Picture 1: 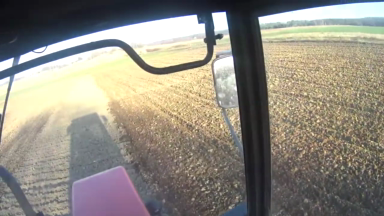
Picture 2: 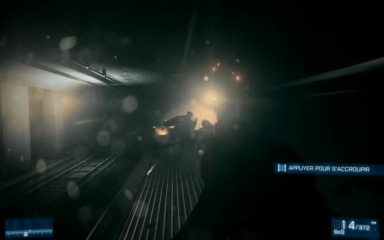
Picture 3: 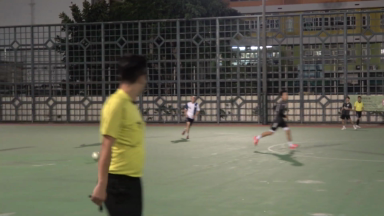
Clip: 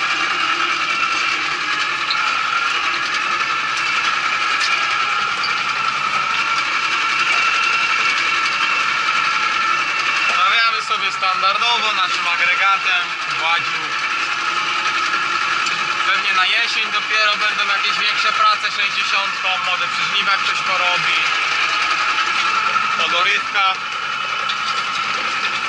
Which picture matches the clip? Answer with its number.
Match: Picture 1